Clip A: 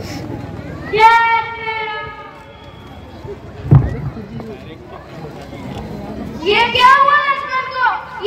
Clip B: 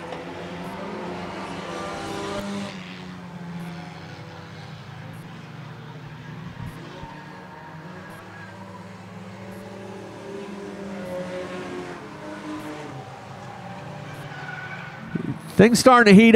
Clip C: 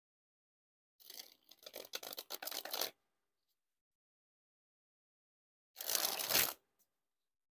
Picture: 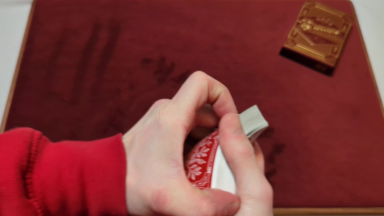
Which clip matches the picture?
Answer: C